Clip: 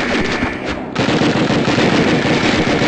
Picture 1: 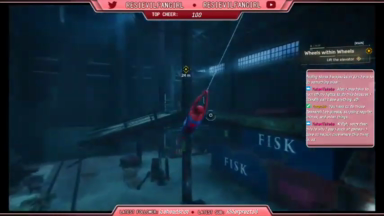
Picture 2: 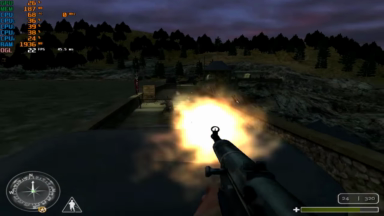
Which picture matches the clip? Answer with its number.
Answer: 2